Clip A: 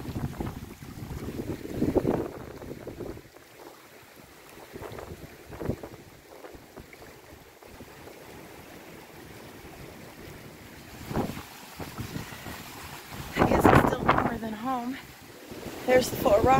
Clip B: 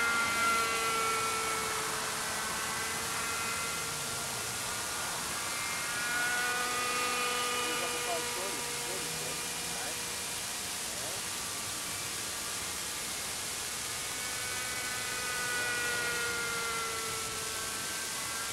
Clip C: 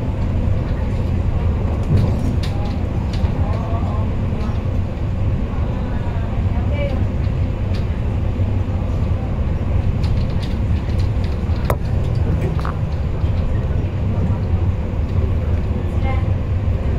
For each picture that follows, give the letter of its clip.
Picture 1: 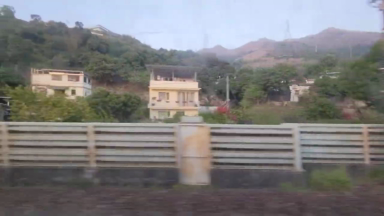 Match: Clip C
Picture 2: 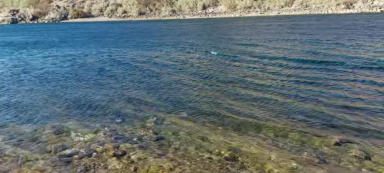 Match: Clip A